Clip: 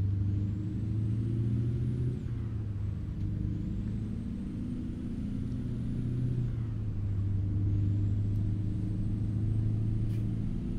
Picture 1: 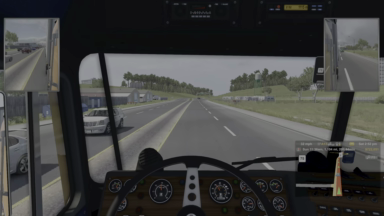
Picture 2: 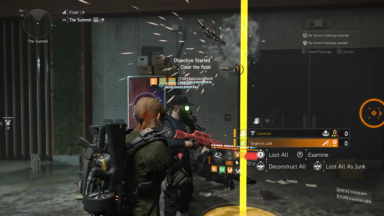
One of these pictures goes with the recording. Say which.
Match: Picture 1